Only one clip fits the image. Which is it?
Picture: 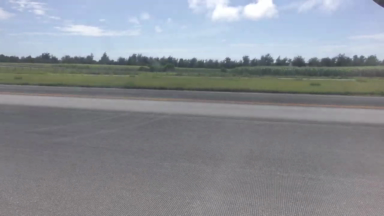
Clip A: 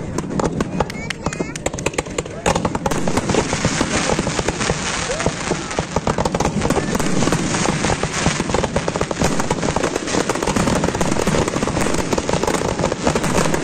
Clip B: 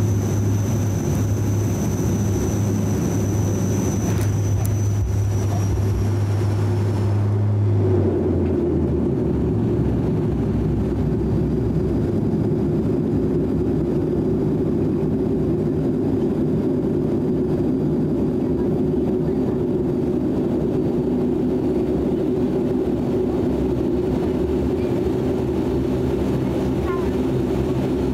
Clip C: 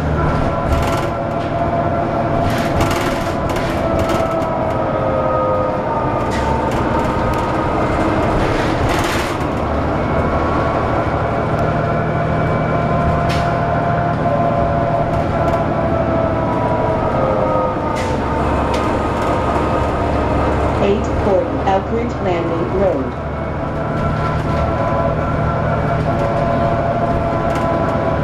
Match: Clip B